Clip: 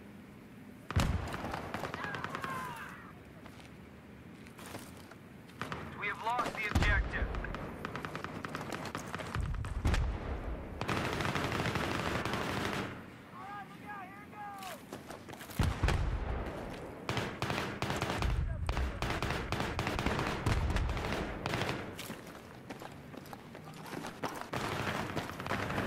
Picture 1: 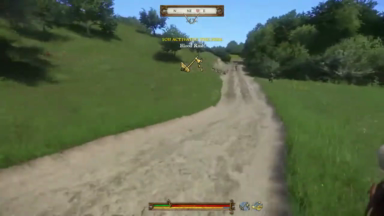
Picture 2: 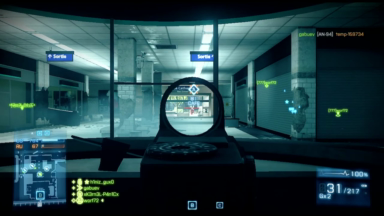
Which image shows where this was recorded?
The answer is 2